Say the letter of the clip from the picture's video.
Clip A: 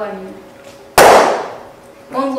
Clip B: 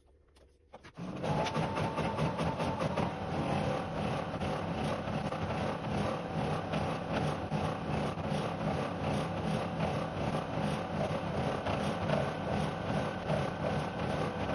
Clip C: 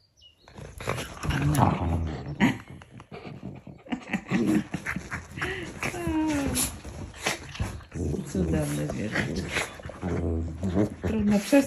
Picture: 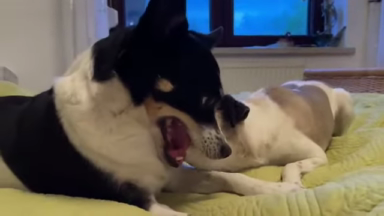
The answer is C